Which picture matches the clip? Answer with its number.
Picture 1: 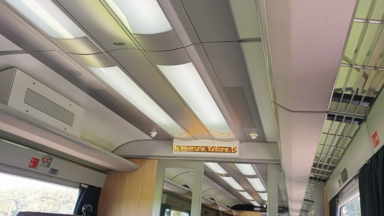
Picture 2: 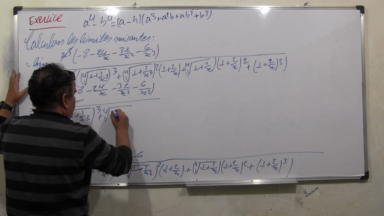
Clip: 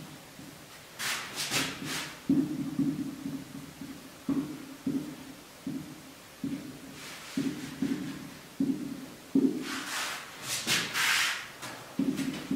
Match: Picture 2